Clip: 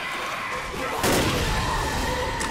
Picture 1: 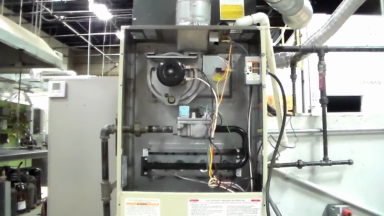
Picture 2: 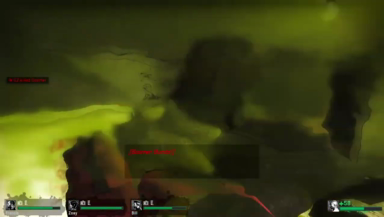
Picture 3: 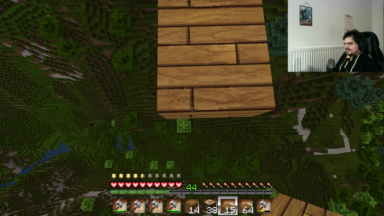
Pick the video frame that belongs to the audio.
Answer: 2